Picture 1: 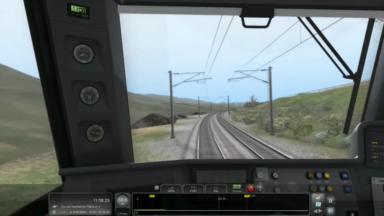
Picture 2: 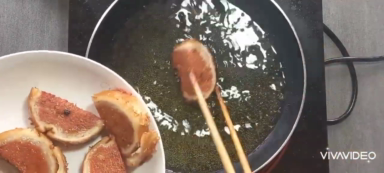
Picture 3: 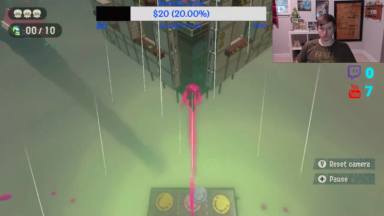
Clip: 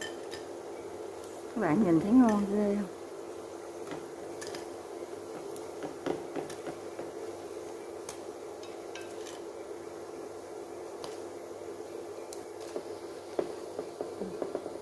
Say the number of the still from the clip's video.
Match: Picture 2